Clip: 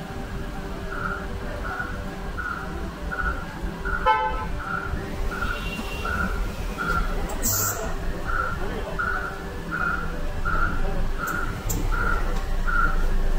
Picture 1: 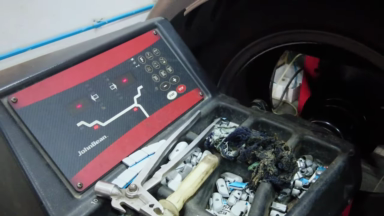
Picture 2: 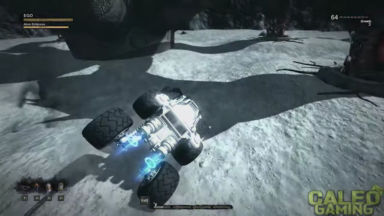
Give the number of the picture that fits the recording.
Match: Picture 1